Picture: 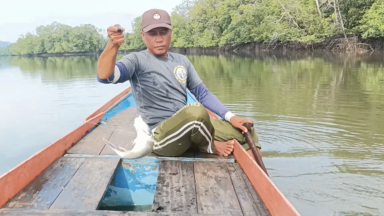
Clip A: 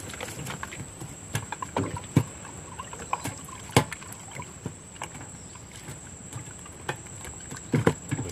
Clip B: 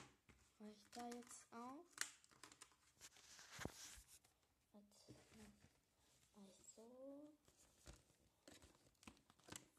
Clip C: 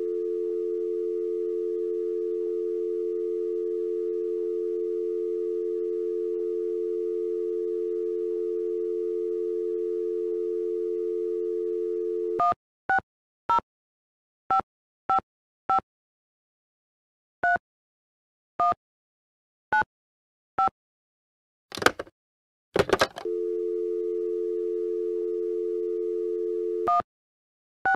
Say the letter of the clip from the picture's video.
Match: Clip A